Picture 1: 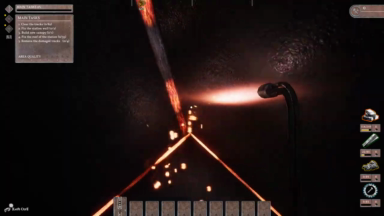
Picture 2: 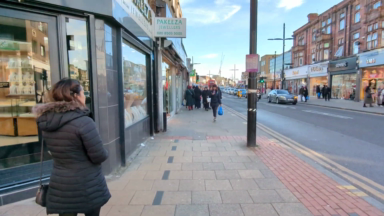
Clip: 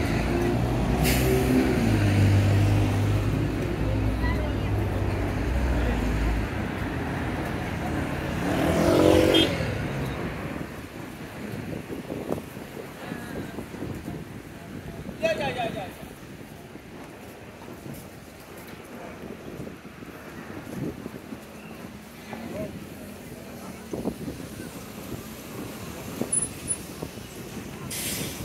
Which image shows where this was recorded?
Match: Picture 2